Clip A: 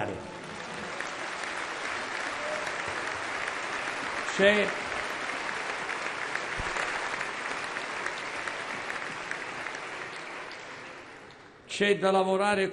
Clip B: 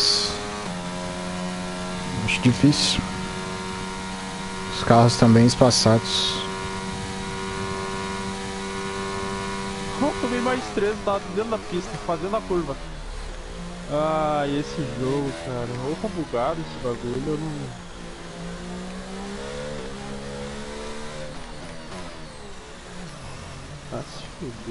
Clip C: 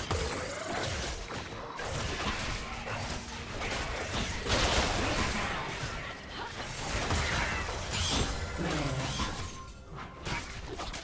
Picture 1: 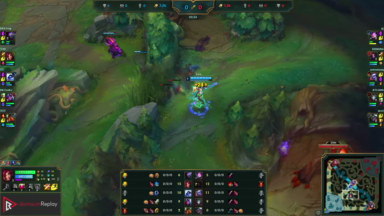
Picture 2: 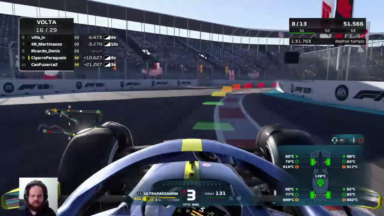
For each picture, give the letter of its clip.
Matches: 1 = C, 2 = B